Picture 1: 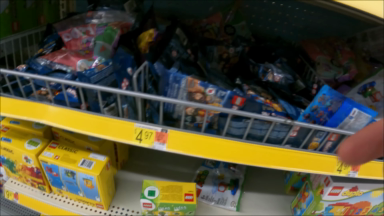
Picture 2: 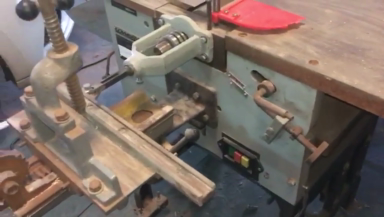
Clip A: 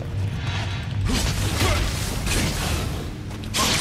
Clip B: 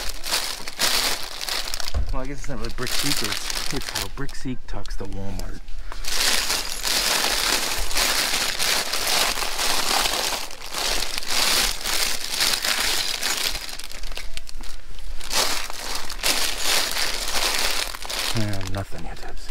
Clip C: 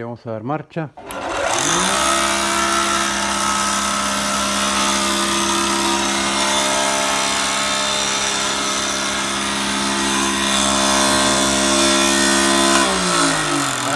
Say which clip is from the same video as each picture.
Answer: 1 B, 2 C